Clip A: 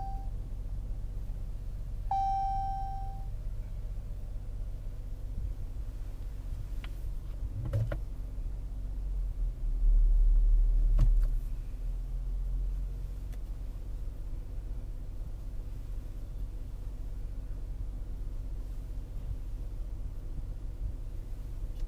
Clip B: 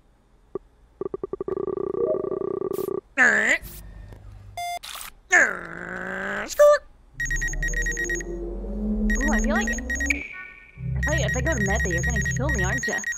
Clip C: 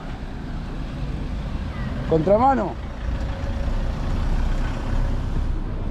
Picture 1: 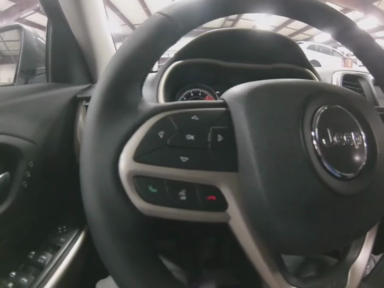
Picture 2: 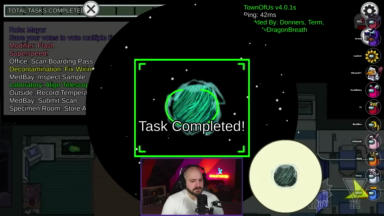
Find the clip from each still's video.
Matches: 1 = A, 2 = B